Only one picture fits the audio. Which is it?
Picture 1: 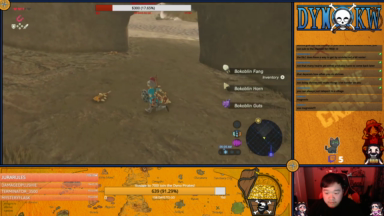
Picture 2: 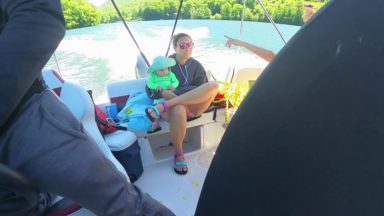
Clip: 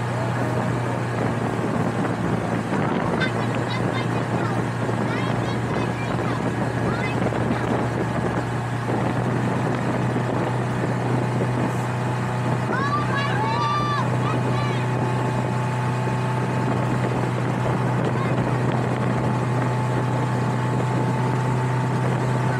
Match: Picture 2